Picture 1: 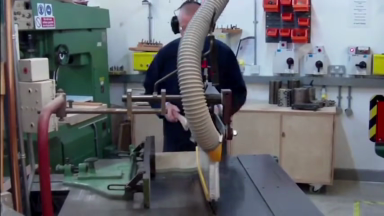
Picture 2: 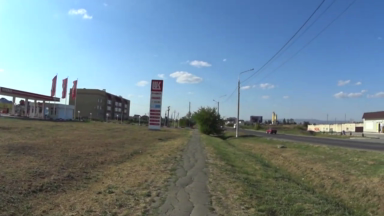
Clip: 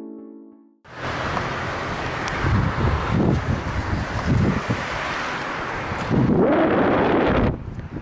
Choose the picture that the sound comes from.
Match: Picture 2